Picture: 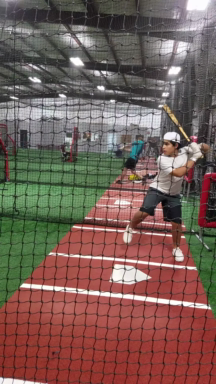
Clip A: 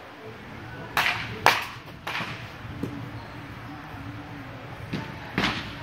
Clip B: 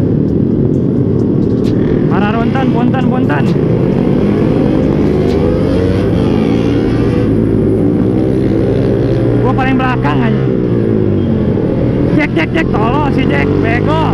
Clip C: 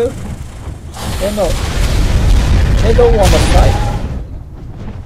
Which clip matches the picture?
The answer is A